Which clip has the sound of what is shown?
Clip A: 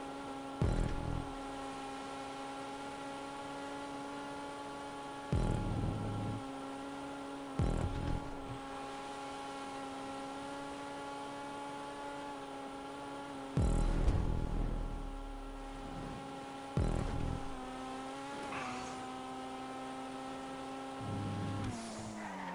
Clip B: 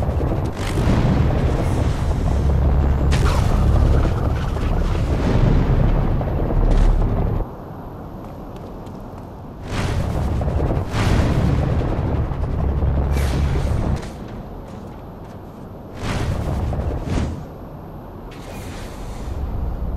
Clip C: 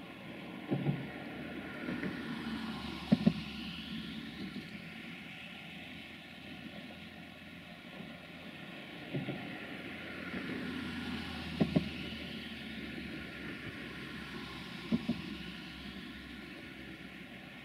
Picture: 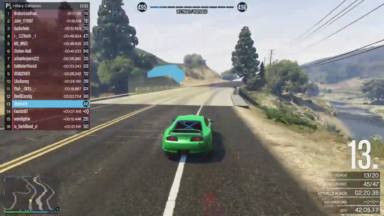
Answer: A